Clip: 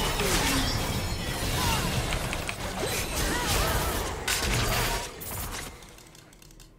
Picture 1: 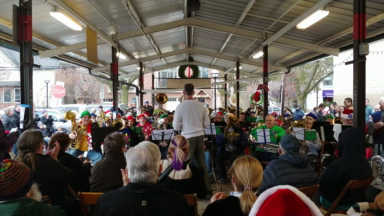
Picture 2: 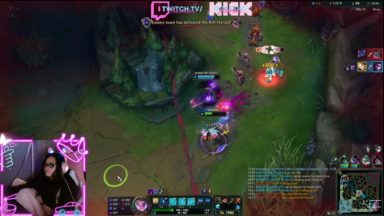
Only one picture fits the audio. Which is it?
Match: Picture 2